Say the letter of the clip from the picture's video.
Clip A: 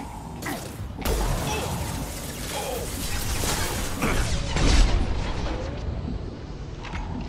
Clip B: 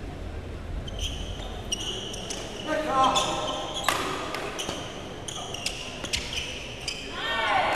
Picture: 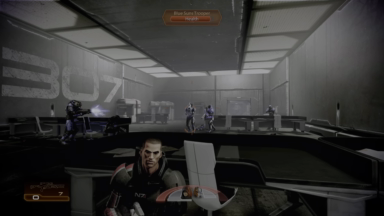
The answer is A